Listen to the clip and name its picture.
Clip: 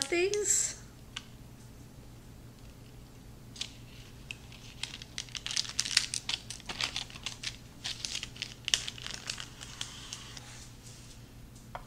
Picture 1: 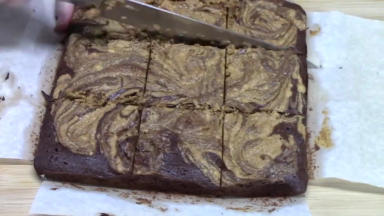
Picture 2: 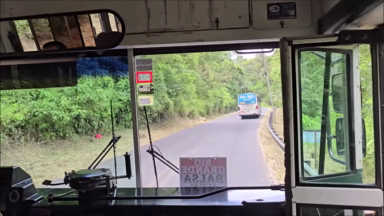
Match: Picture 1